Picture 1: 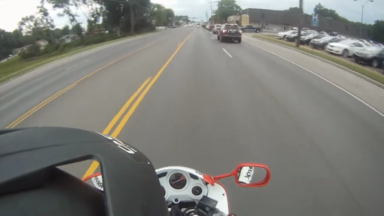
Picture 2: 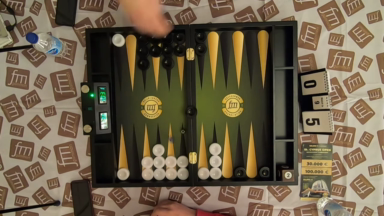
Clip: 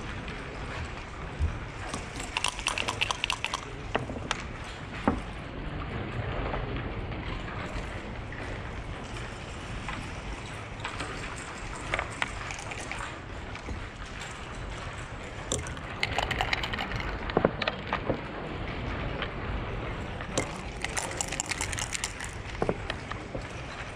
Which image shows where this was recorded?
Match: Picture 2